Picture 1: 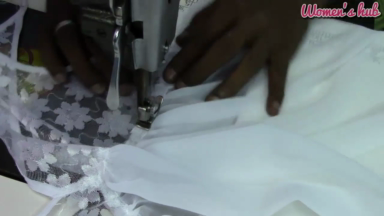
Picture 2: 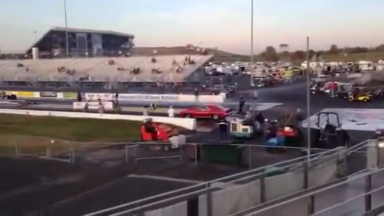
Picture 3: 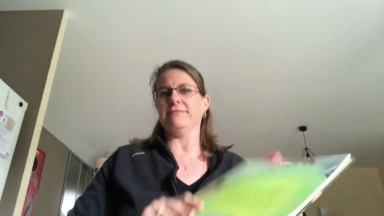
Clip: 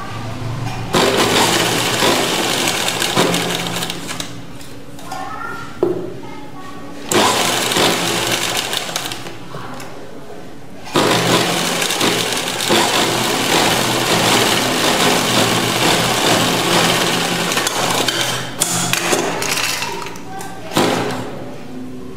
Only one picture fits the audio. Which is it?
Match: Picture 1